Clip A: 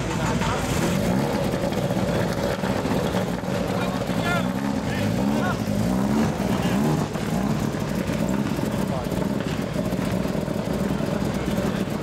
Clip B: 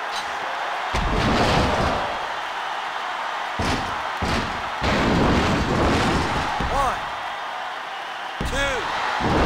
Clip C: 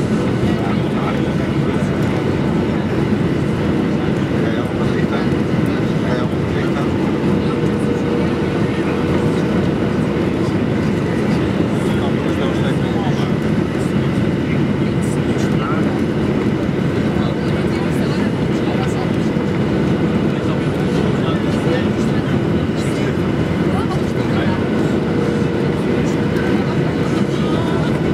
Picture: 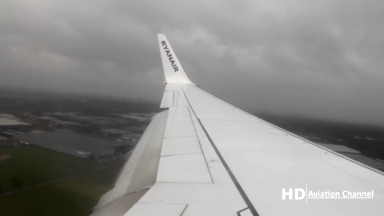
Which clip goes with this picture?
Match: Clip C